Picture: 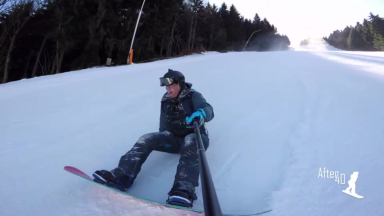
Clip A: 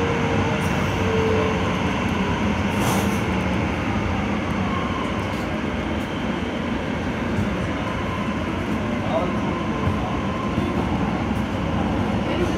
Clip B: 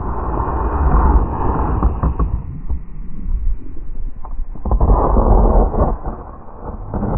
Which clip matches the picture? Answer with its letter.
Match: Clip B